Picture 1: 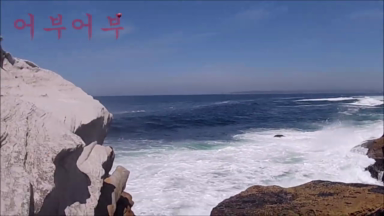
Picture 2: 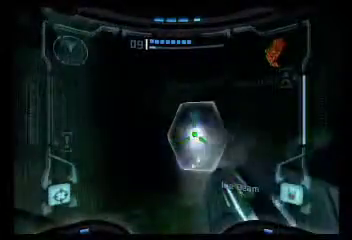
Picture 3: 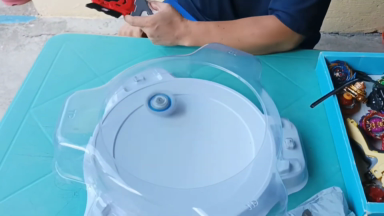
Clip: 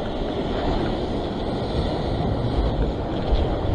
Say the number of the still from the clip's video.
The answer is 1